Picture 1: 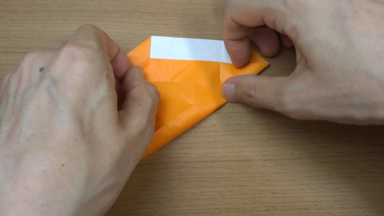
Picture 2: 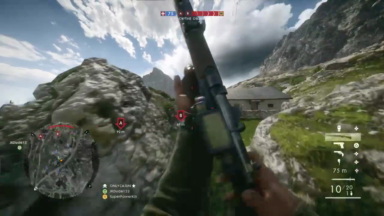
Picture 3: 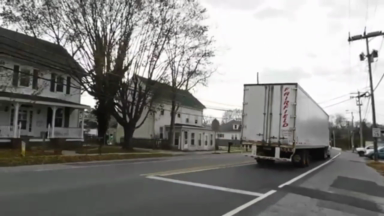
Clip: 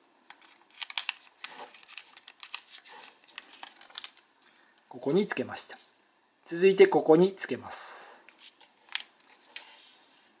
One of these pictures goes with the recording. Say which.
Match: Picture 1